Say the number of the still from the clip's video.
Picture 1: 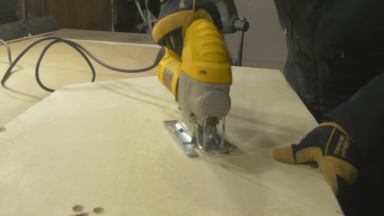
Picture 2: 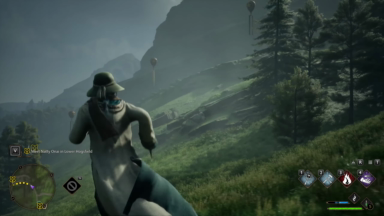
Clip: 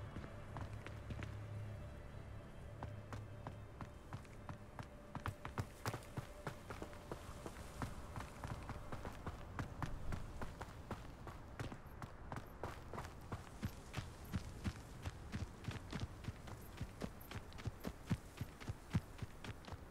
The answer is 2